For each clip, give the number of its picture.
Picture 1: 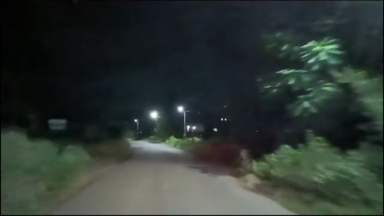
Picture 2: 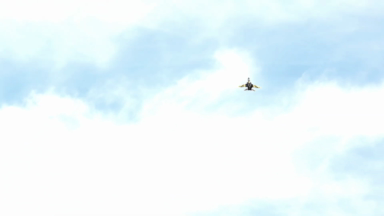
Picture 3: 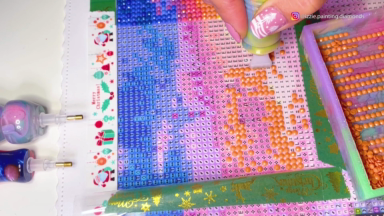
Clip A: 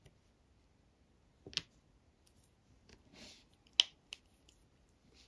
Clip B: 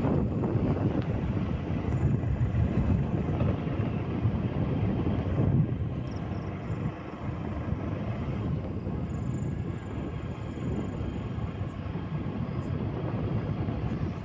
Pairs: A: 3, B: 1